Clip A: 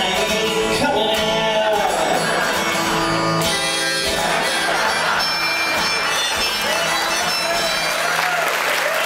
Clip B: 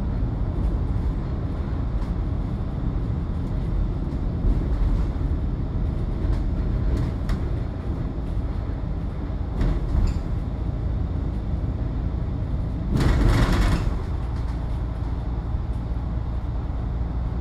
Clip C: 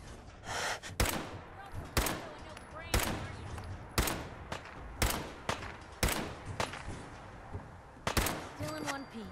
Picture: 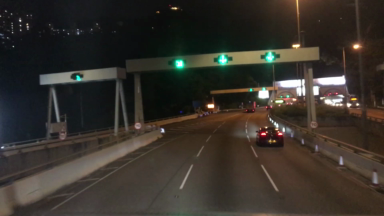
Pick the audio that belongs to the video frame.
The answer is B